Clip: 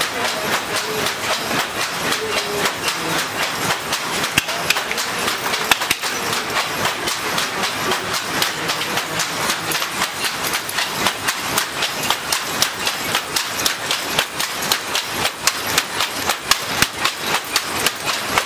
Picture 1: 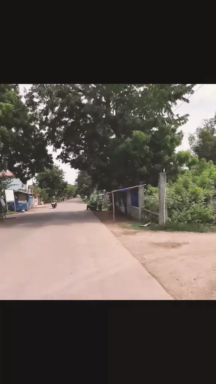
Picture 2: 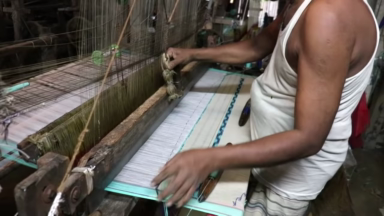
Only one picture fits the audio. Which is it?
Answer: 2